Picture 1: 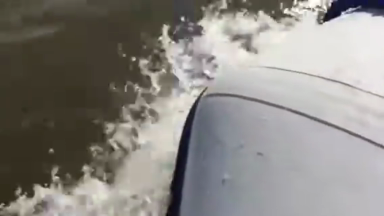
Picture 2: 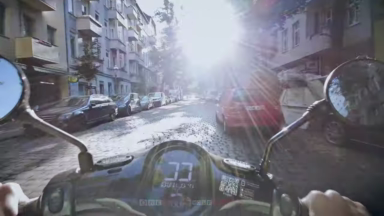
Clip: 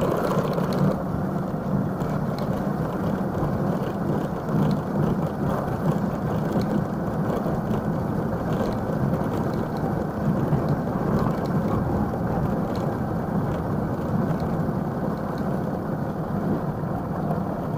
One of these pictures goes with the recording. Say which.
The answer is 2